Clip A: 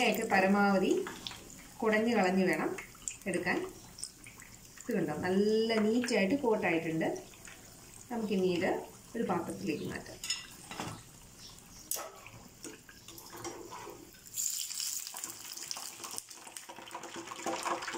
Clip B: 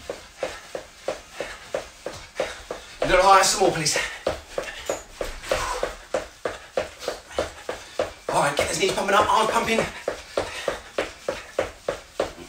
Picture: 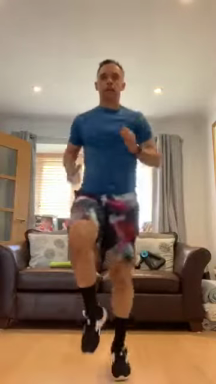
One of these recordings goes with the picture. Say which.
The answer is B